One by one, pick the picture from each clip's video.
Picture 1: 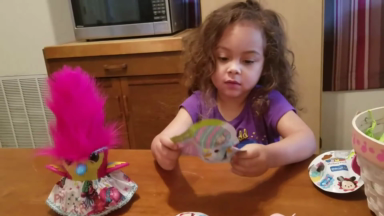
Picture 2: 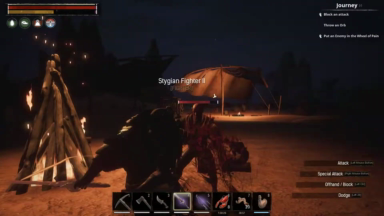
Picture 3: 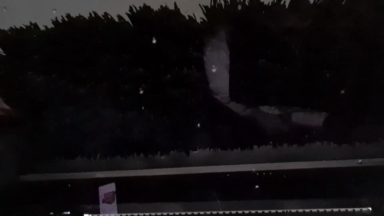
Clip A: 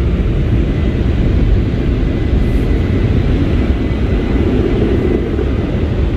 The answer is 3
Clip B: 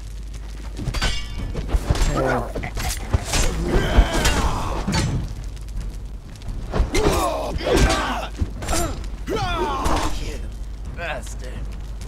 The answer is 2